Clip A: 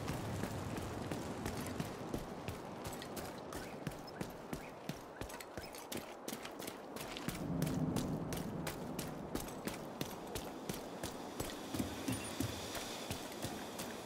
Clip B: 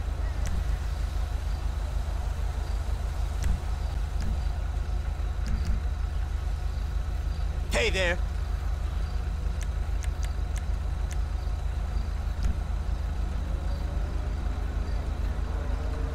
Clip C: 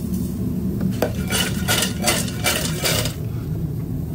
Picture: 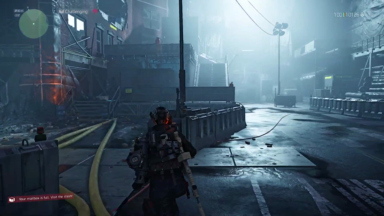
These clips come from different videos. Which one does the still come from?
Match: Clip A